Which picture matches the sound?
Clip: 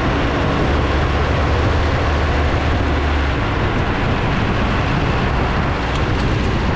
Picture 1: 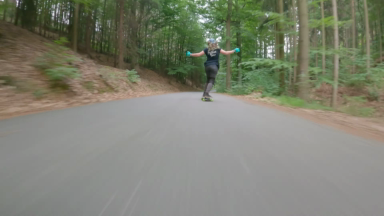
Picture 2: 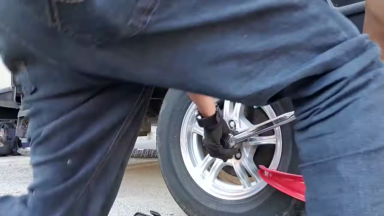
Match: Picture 1